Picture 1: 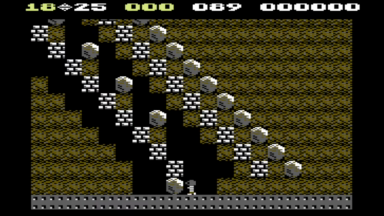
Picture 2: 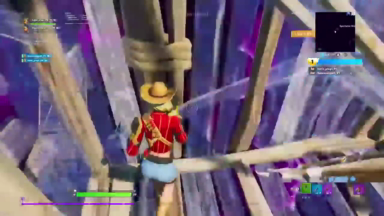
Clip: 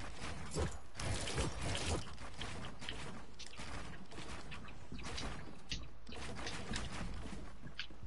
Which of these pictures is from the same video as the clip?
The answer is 2